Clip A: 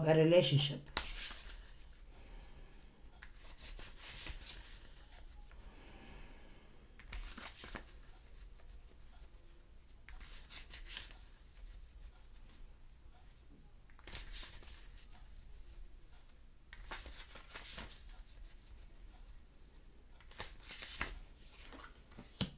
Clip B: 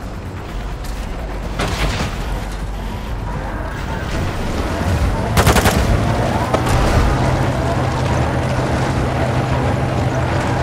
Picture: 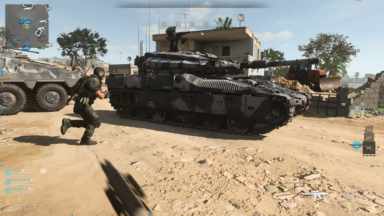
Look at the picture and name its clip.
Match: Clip B